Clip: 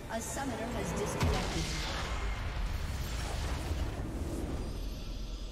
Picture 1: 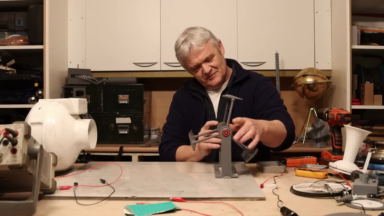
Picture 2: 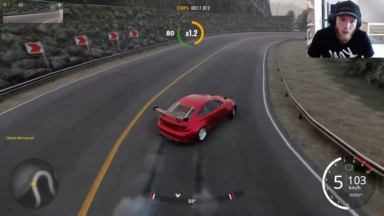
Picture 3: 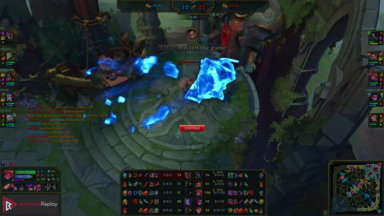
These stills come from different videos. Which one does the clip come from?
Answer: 3